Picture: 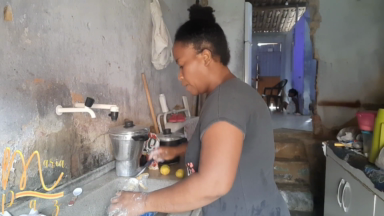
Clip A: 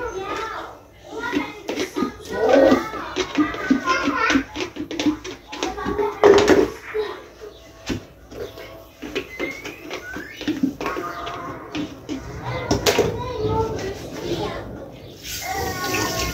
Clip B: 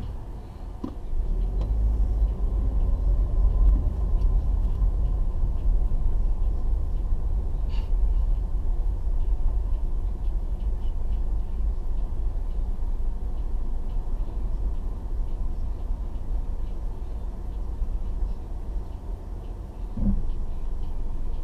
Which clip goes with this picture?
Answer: A